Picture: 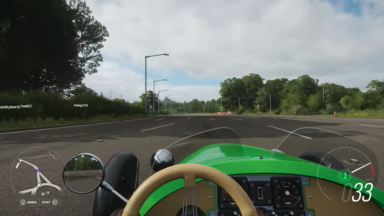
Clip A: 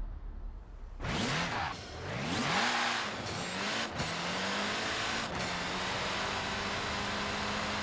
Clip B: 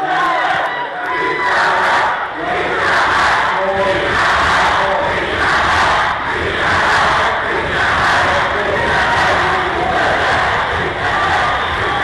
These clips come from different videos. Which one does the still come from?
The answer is A